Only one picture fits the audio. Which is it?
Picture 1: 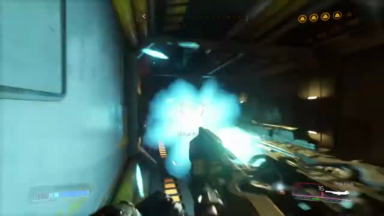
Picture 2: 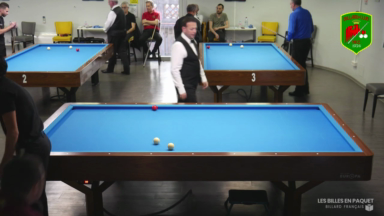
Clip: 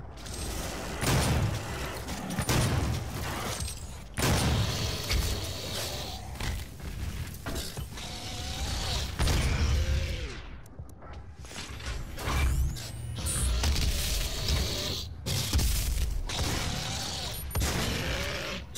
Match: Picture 1